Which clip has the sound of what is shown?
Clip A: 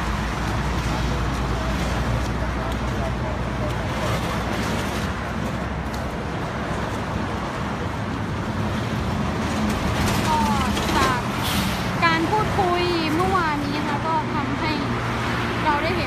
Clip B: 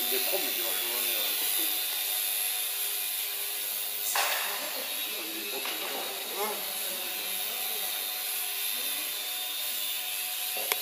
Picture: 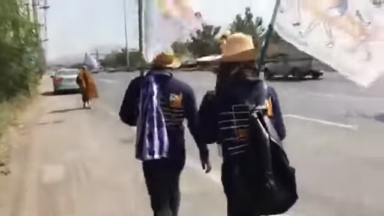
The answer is A